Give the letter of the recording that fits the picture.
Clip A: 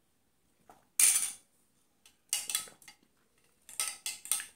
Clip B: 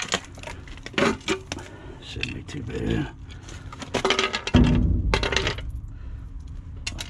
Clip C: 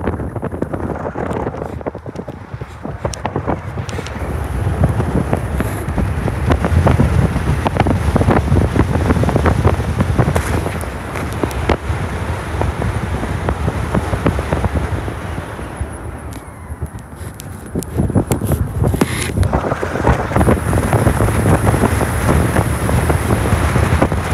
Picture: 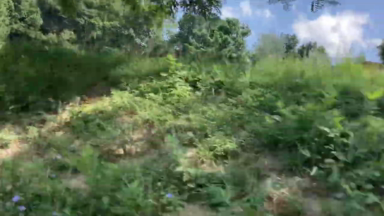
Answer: C